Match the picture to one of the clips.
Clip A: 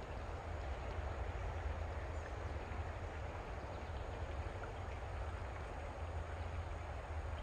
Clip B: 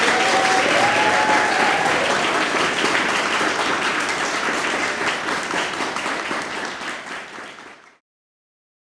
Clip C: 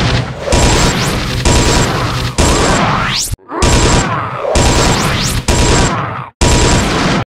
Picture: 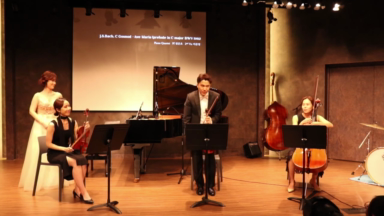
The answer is B